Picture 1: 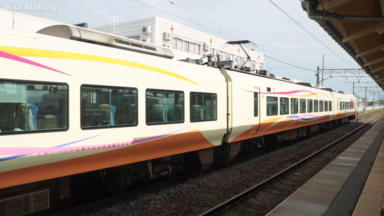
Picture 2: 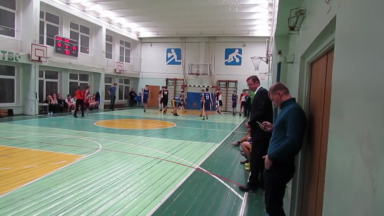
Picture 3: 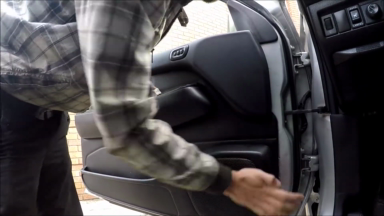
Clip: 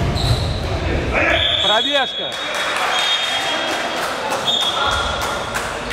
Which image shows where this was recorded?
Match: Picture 2